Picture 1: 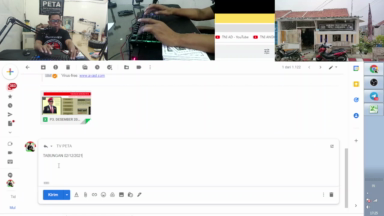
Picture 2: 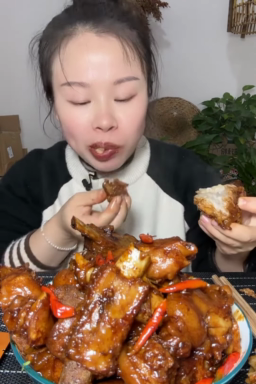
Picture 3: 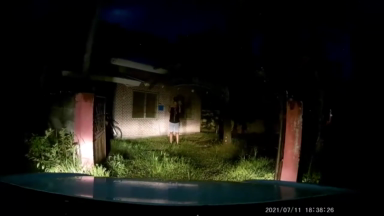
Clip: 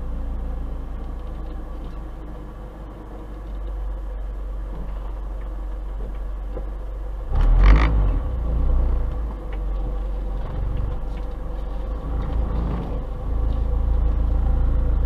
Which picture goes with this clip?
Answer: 3